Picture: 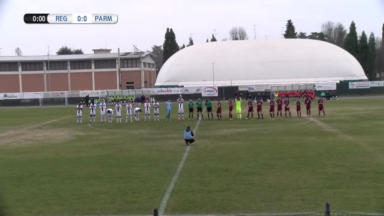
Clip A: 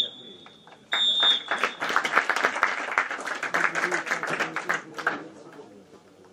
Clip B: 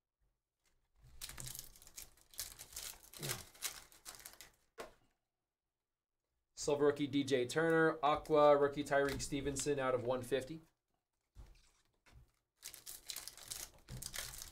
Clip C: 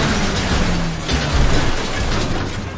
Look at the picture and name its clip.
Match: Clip A